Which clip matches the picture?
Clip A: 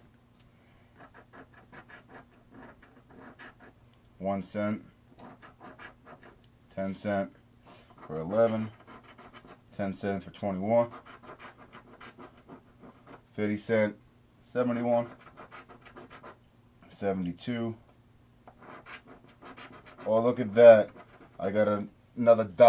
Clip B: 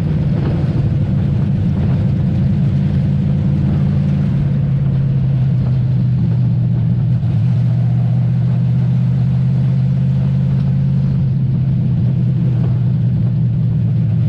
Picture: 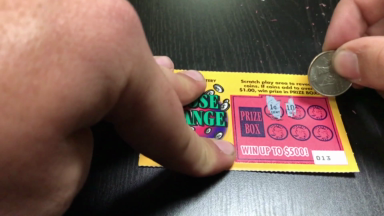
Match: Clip A